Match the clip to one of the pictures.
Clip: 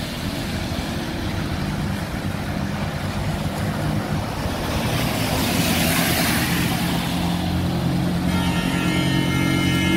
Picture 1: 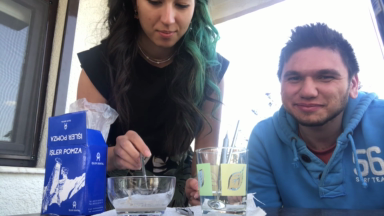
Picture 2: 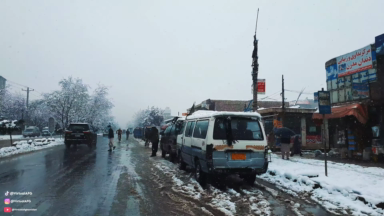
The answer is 2